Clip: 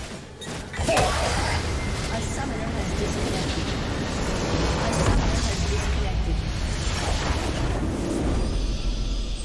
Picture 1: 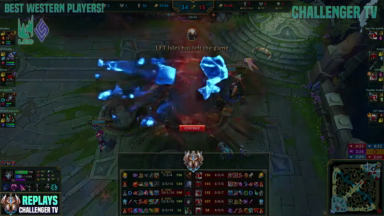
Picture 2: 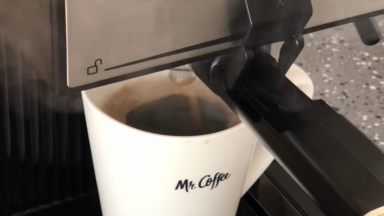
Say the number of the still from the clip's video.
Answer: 1